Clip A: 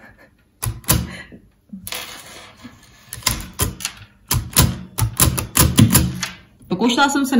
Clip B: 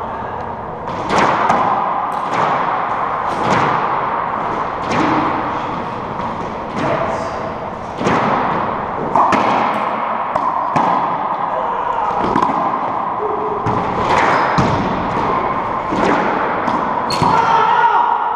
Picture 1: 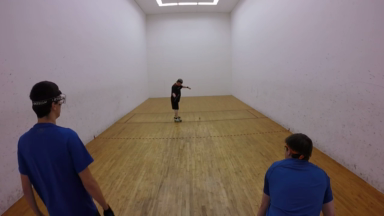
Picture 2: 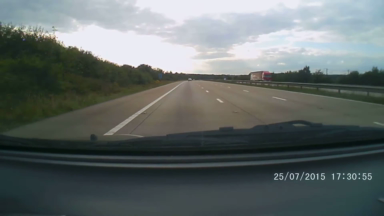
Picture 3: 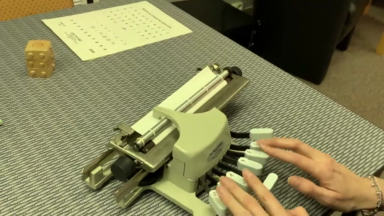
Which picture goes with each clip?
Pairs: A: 3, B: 1